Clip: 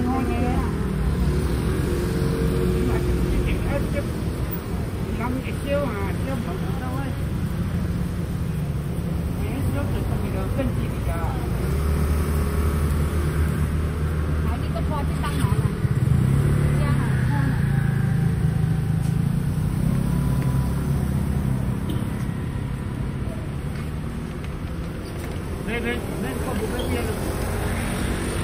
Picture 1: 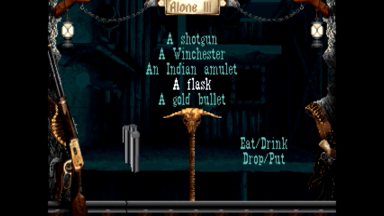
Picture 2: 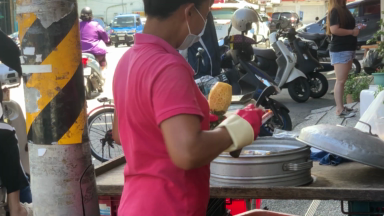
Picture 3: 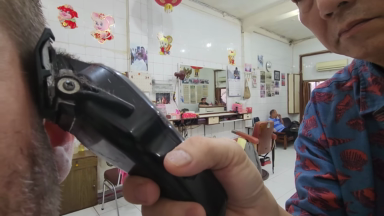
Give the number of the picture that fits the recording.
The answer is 2